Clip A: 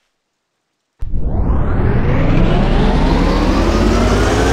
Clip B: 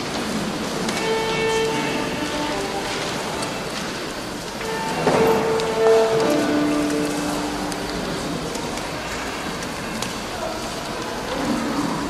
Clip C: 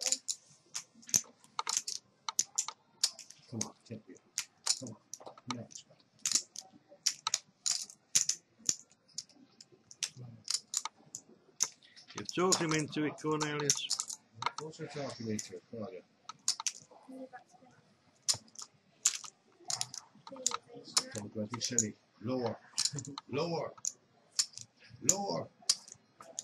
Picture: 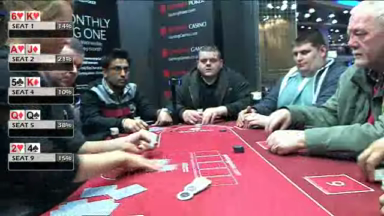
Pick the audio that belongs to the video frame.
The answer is C